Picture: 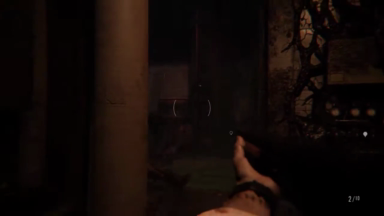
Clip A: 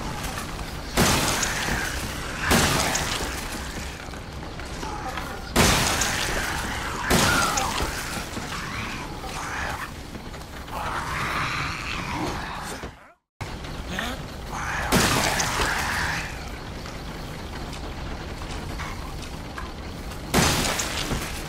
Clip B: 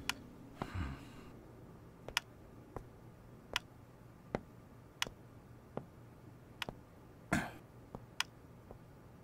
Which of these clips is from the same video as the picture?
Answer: A